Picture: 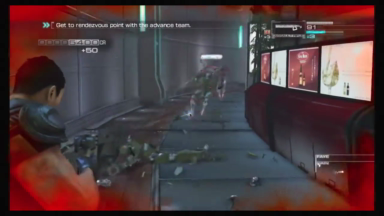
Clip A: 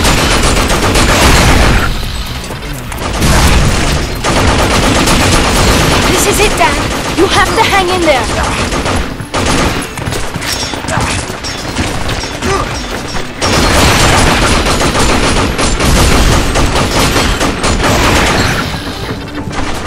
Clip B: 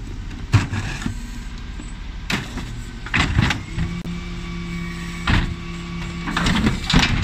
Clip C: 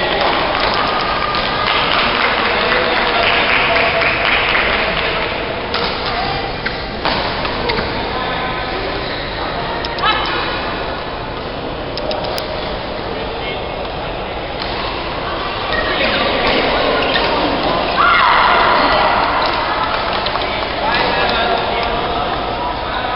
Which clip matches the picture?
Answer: A